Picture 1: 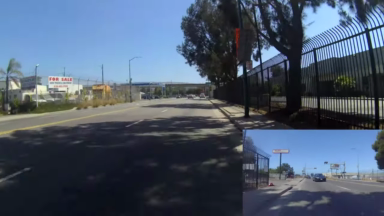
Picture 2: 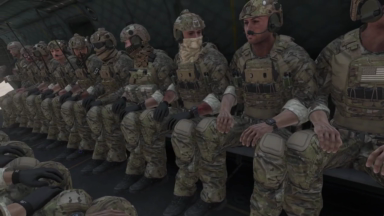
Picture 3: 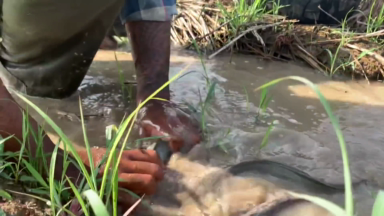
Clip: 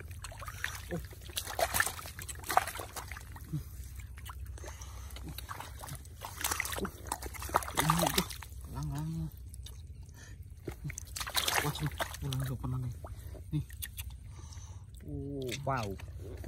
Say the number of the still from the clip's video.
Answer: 3